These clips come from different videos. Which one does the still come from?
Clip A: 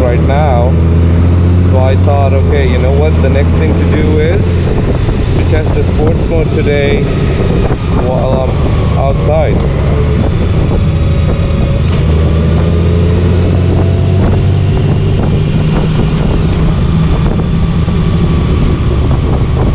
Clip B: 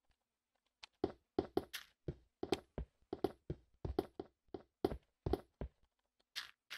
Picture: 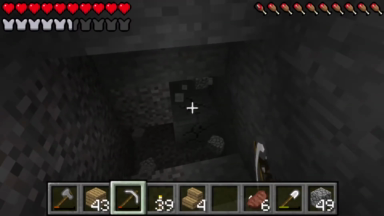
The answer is B